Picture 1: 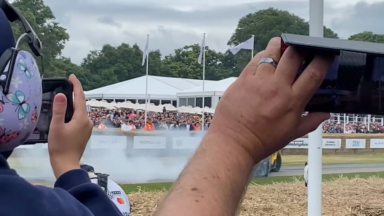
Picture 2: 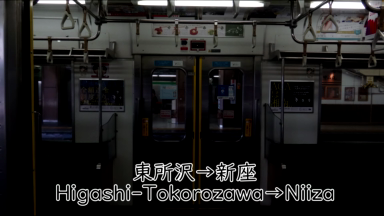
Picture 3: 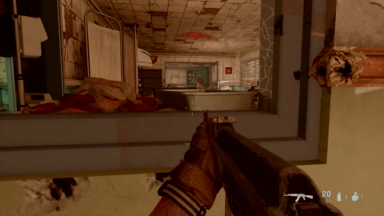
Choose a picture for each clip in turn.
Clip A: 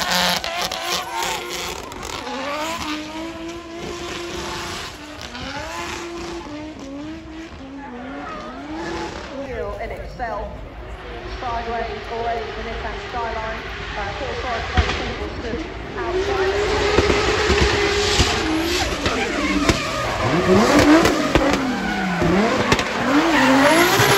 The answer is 1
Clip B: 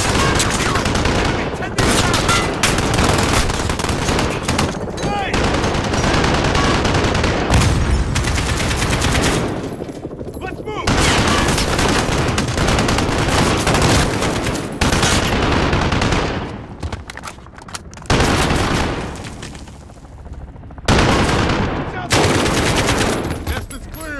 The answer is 3